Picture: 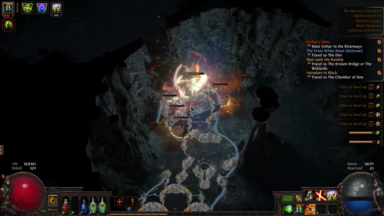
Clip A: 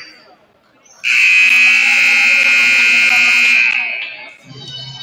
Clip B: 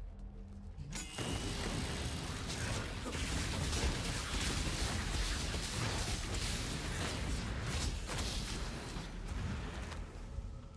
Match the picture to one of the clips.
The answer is B